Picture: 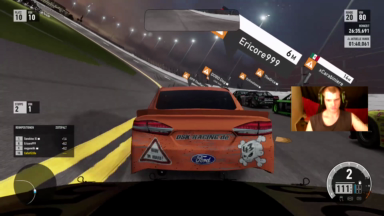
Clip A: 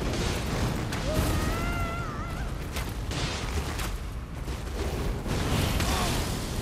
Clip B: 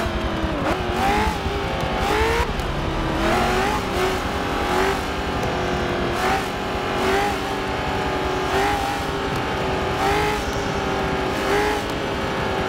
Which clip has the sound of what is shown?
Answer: B